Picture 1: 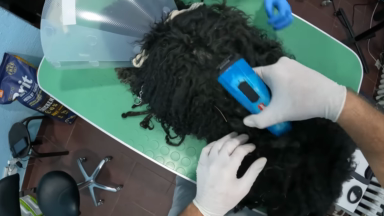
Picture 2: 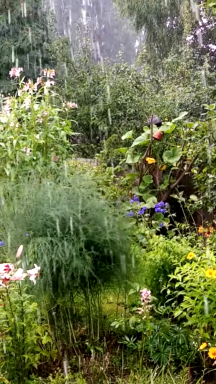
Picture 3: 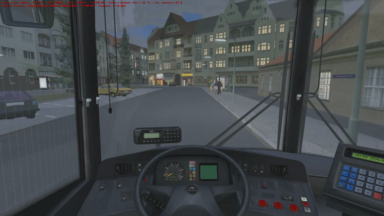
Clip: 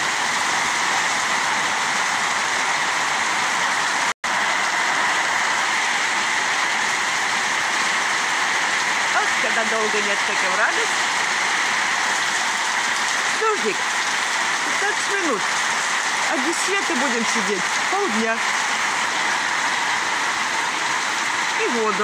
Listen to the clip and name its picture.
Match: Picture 2